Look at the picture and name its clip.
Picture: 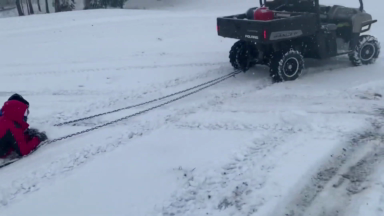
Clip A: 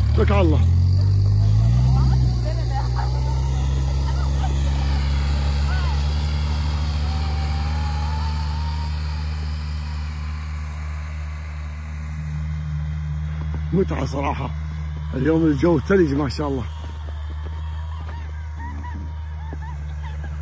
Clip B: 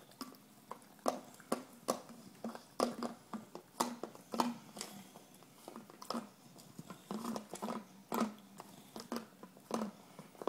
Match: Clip A